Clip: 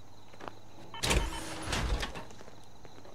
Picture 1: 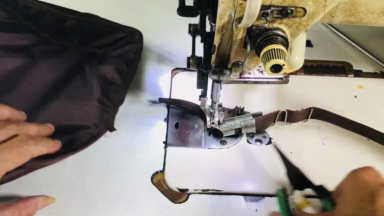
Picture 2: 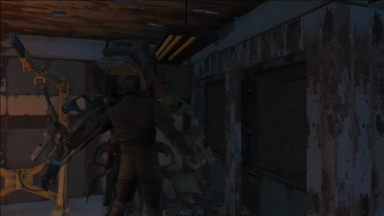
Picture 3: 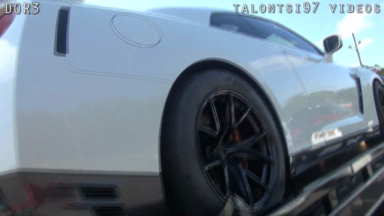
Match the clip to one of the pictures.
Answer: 2